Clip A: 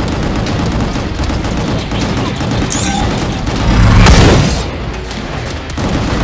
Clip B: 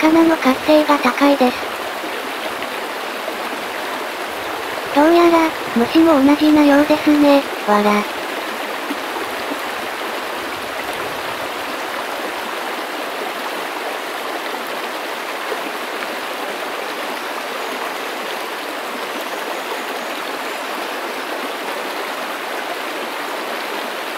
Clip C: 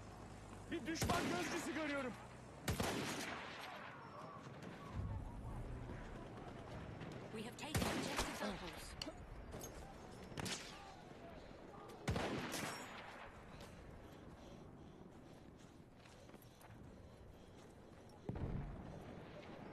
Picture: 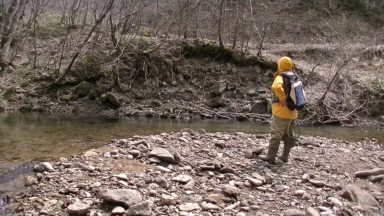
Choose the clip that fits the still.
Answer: B